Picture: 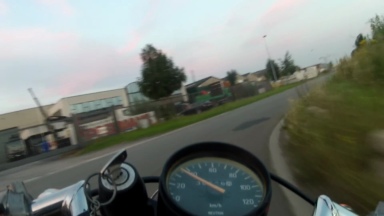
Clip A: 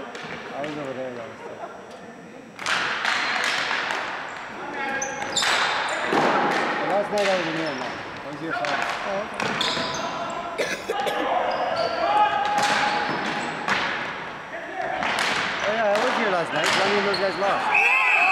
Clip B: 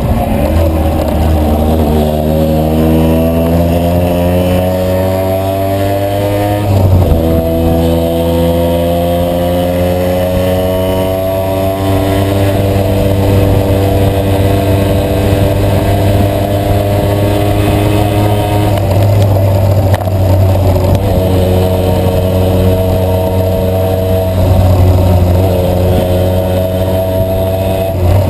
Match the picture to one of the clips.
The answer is B